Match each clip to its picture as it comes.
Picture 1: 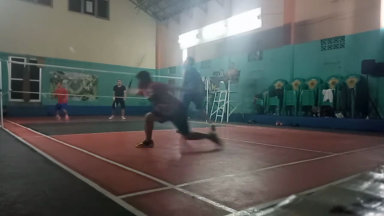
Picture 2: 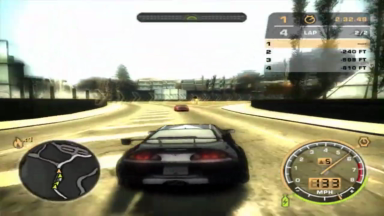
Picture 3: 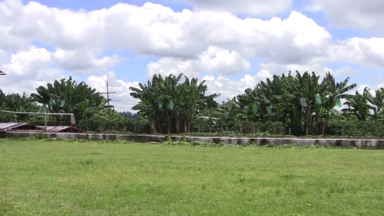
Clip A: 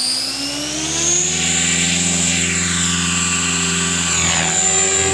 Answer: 3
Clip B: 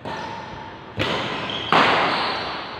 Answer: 1